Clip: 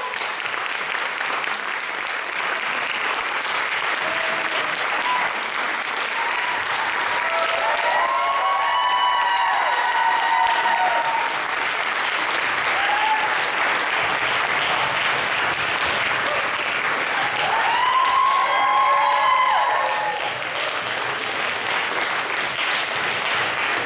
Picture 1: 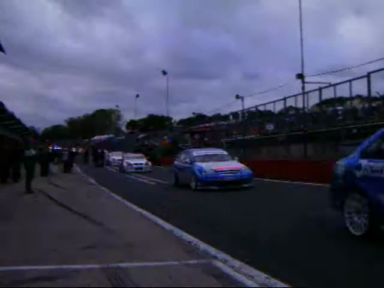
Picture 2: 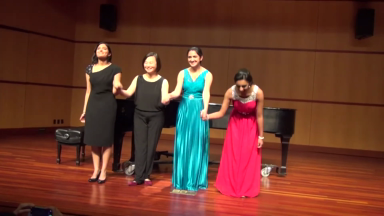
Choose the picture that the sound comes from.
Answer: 2